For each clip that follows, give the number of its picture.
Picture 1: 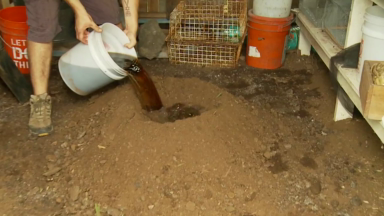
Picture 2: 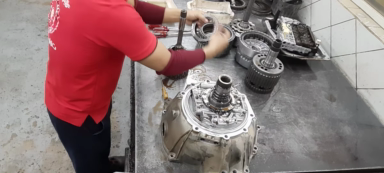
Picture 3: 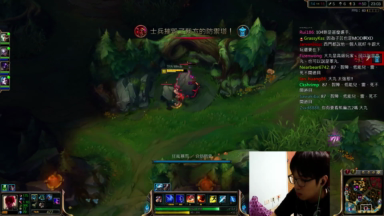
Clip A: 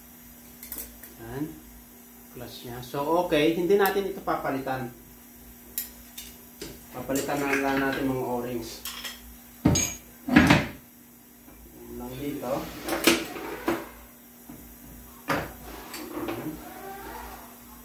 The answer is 2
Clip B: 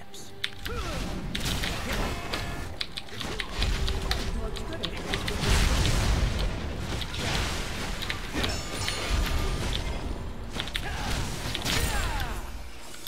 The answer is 3